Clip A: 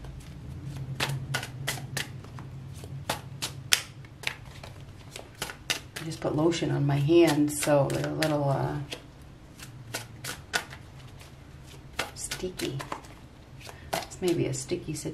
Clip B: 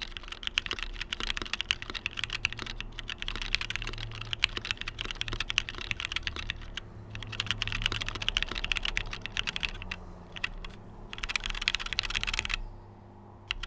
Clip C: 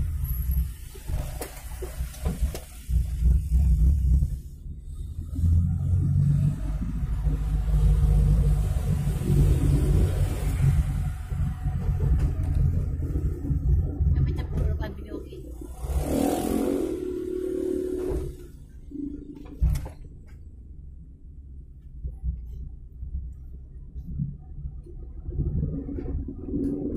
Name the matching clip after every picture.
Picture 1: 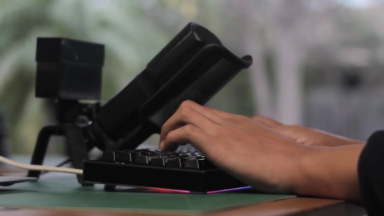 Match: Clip B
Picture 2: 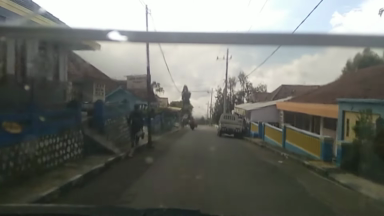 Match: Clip C